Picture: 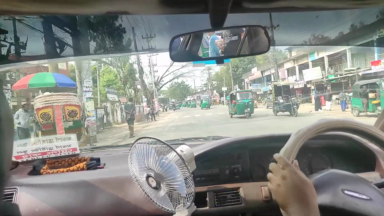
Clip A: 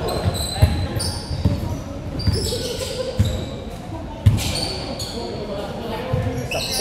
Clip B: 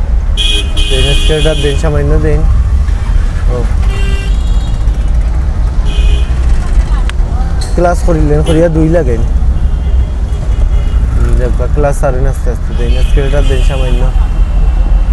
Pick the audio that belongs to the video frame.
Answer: B